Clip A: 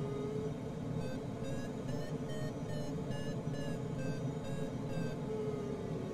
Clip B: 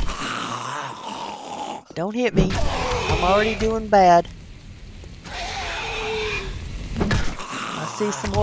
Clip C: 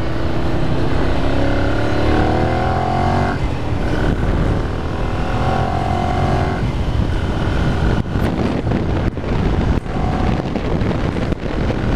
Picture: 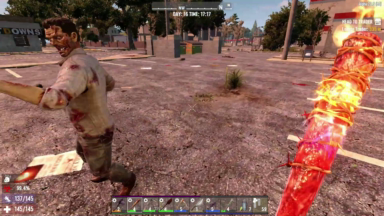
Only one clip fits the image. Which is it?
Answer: B